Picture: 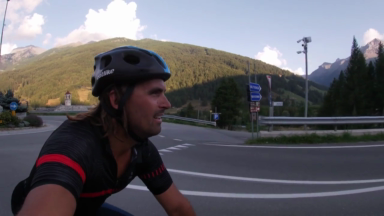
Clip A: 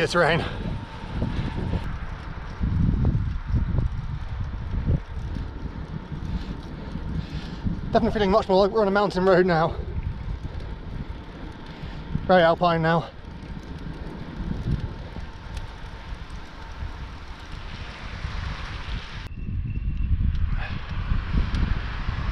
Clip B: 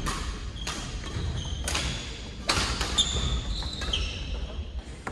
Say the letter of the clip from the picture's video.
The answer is A